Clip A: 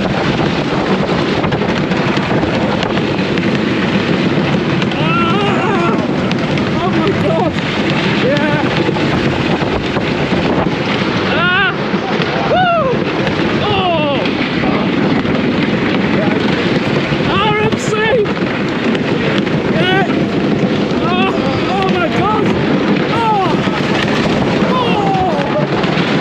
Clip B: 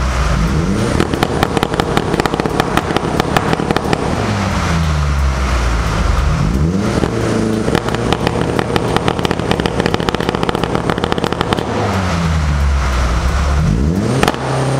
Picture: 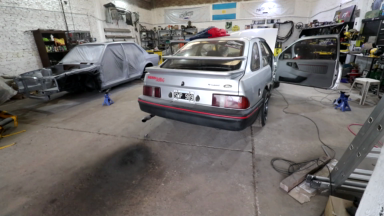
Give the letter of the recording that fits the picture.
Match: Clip B